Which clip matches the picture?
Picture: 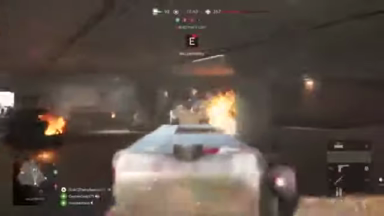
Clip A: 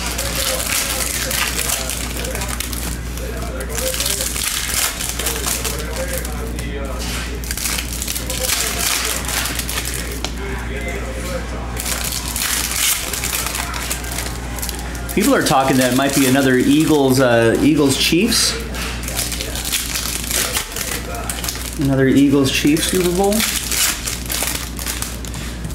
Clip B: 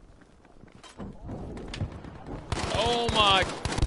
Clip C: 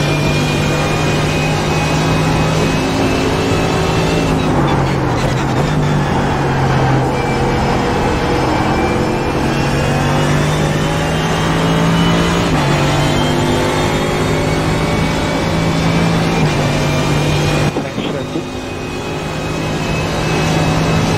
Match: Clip B